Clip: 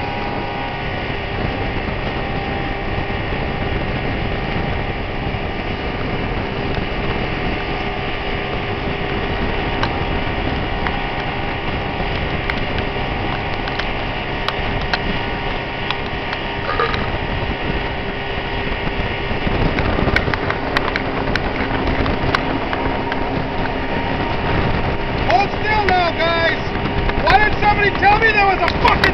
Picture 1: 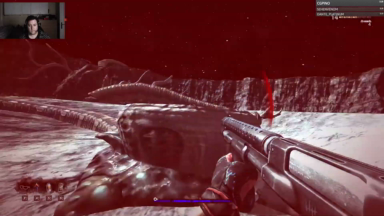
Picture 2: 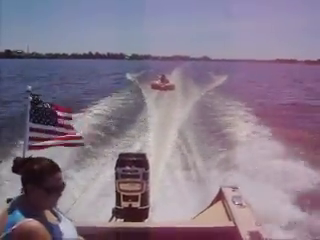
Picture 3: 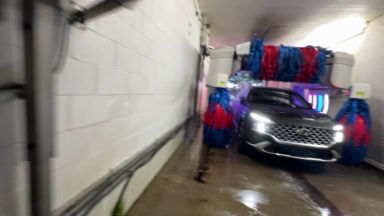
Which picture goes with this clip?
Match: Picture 2